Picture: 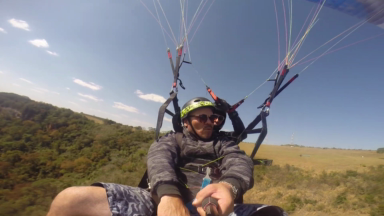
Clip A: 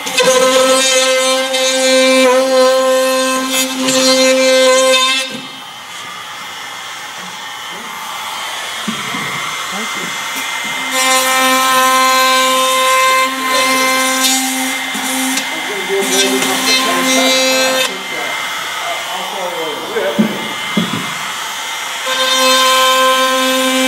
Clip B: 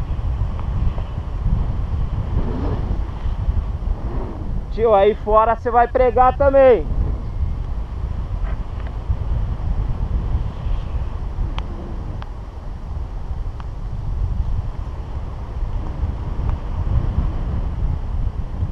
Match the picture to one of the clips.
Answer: B